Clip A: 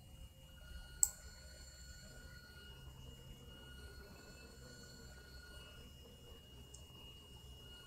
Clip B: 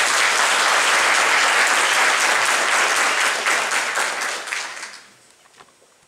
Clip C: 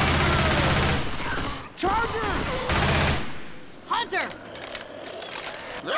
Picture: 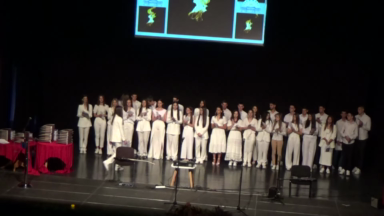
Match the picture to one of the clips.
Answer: B